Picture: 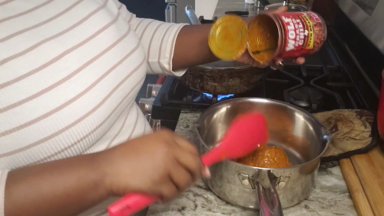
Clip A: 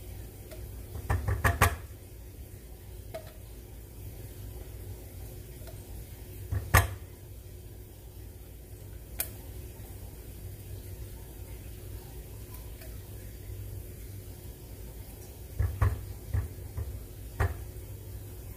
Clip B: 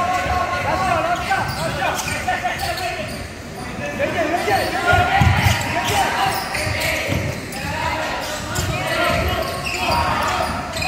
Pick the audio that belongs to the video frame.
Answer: A